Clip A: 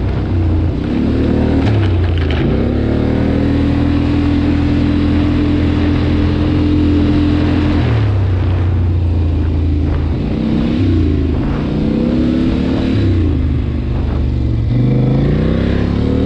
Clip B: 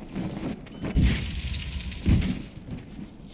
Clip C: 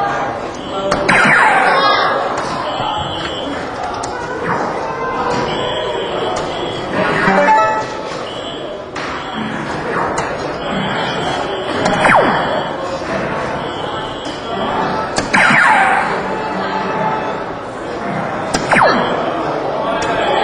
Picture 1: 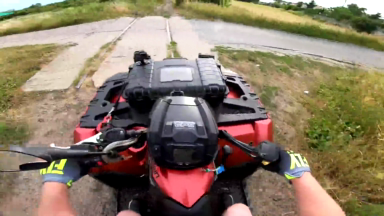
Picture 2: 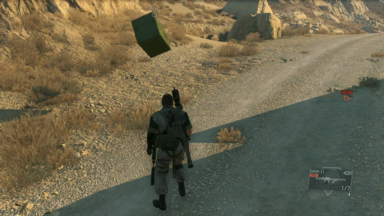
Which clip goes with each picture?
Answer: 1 A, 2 B